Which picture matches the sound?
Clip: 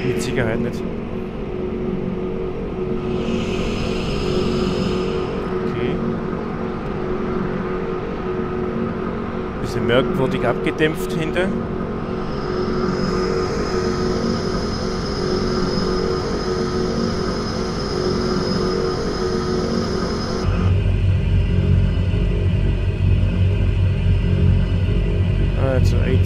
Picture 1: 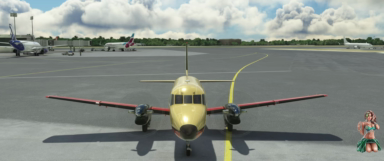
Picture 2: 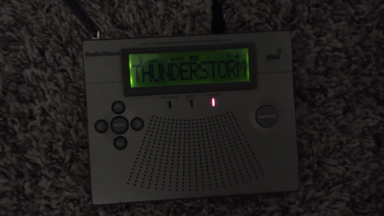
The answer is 1